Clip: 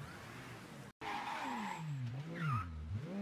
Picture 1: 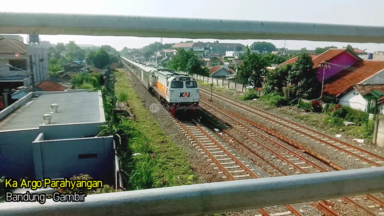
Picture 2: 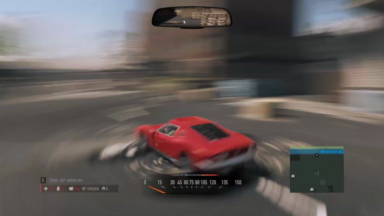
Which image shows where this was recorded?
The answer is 2